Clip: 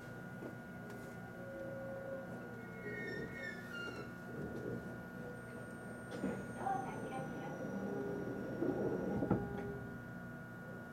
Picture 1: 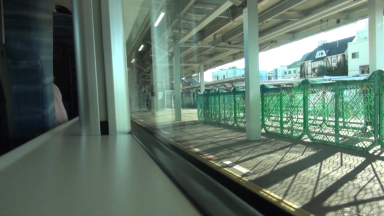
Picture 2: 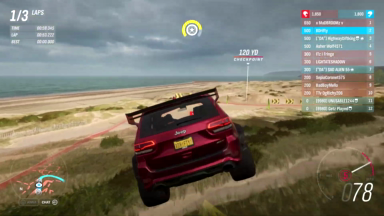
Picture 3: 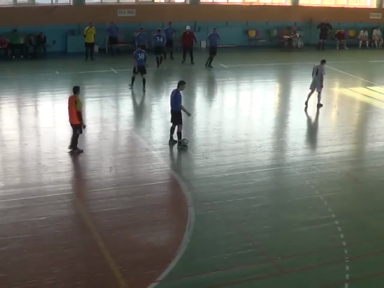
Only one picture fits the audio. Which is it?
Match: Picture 1